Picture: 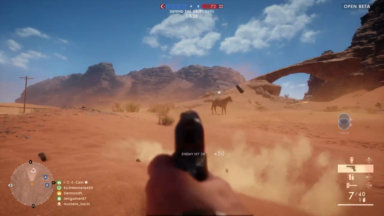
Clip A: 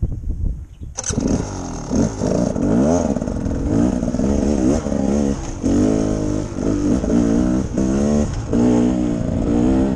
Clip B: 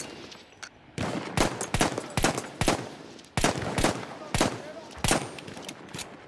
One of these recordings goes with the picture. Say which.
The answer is B